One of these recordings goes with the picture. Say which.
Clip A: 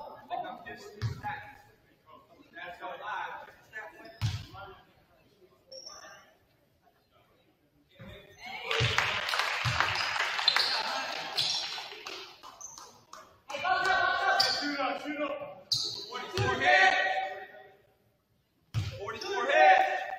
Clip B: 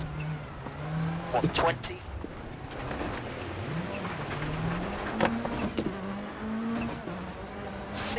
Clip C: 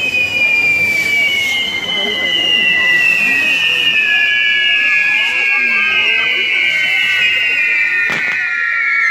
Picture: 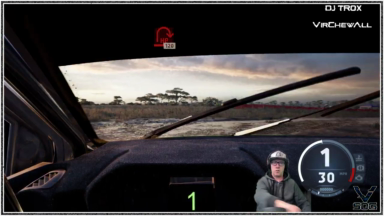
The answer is B